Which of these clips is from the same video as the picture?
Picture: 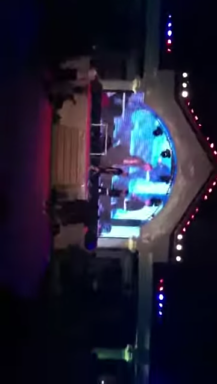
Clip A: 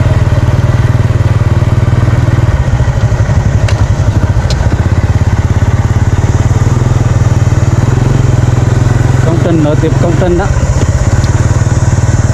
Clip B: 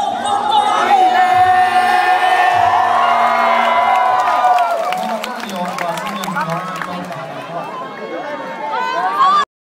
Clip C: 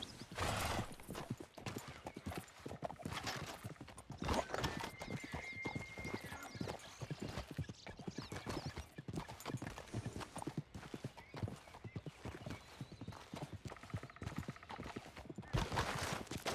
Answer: B